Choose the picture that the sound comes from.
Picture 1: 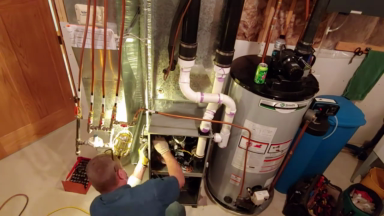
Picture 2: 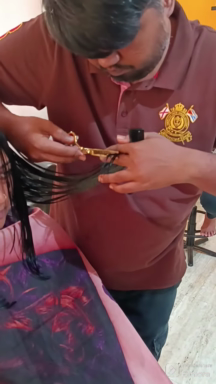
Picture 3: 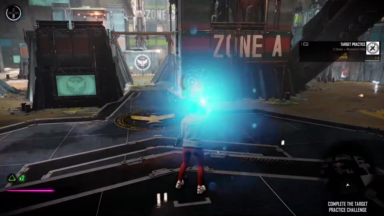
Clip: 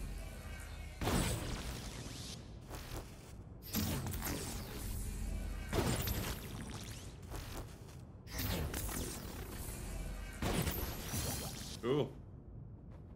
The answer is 3